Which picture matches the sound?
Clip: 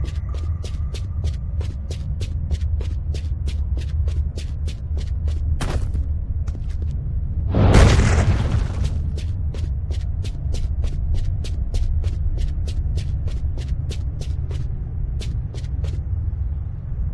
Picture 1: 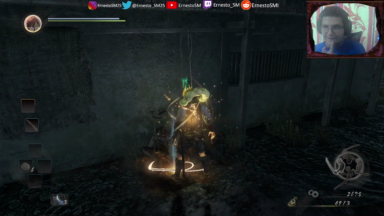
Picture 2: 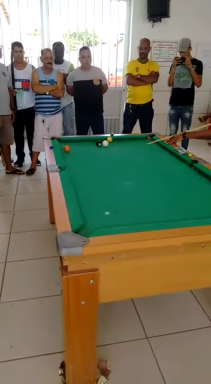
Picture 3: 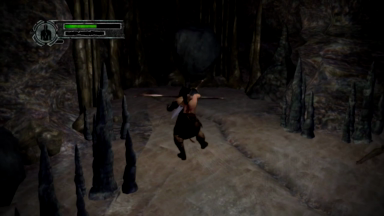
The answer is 3